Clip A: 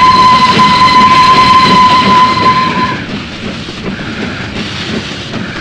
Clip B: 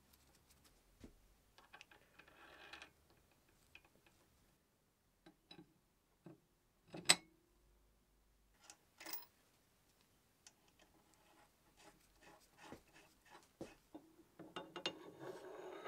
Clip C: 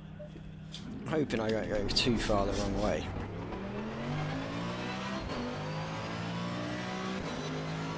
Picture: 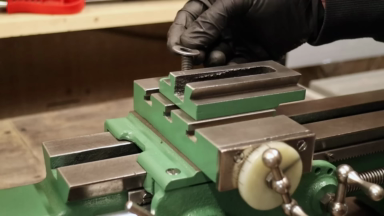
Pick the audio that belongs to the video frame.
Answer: B